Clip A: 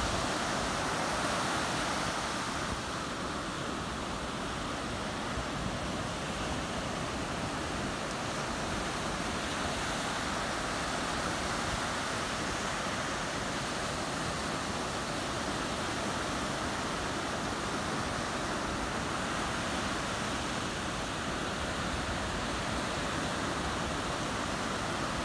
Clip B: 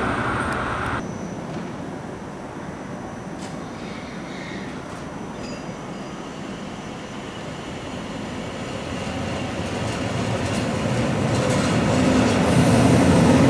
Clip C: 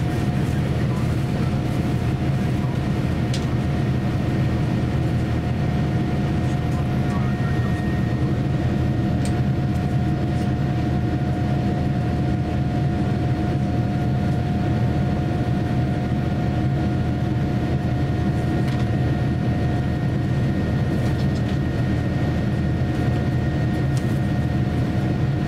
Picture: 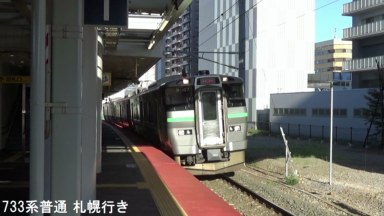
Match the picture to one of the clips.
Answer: B